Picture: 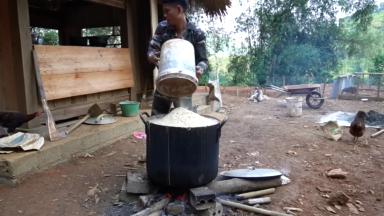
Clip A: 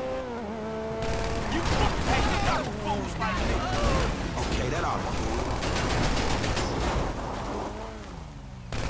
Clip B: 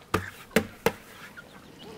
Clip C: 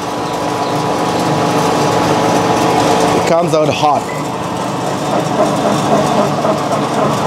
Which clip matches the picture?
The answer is B